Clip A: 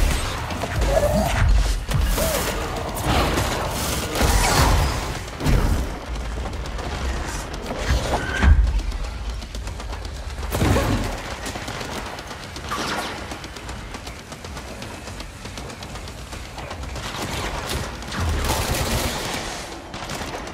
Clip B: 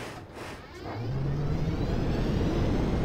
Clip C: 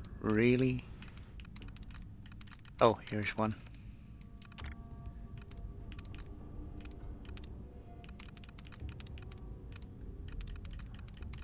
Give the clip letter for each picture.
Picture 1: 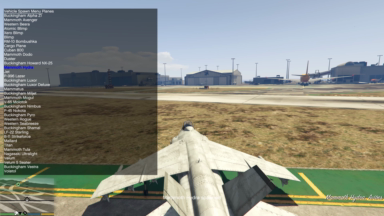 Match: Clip B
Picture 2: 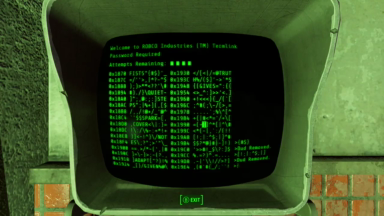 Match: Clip C